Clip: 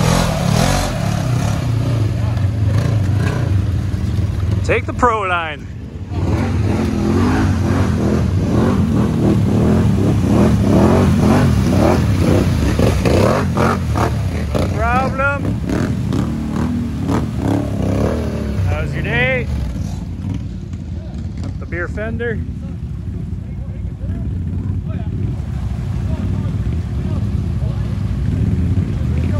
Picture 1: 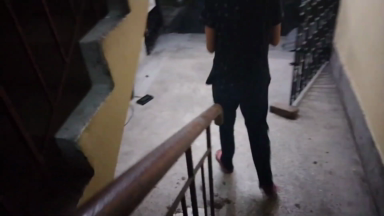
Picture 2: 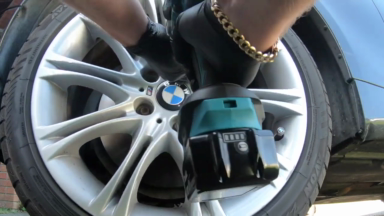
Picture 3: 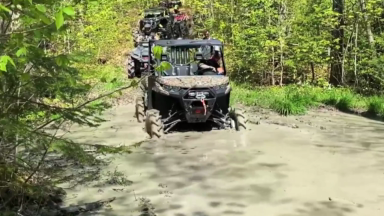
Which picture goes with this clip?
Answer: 3